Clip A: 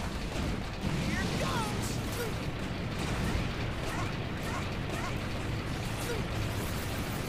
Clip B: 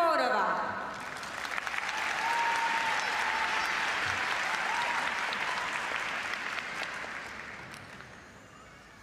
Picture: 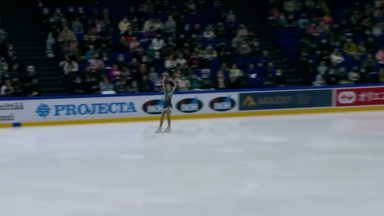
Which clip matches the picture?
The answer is B